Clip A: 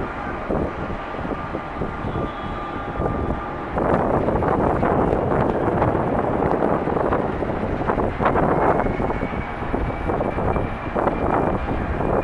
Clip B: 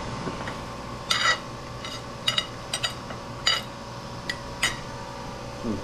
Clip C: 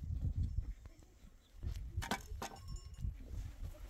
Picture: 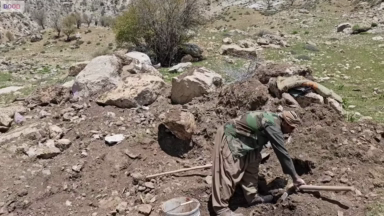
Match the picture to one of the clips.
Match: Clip C